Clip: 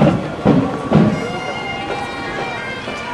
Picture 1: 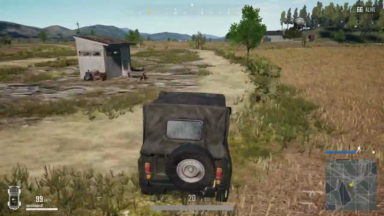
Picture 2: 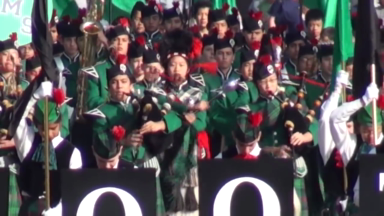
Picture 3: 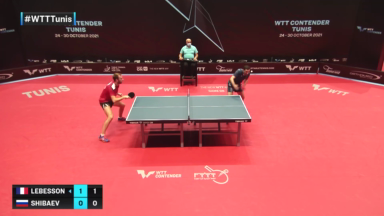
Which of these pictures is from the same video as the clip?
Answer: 2